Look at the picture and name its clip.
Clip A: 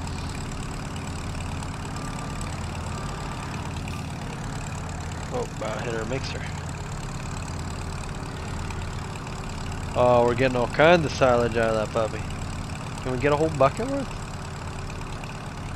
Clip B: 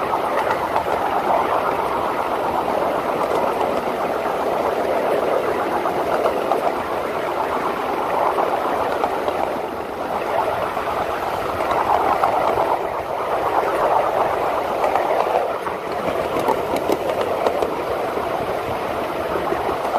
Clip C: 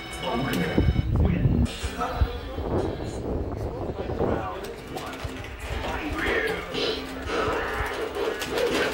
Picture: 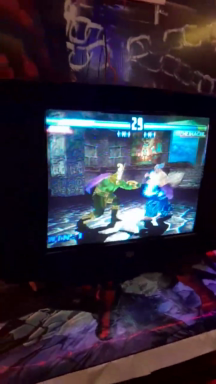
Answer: C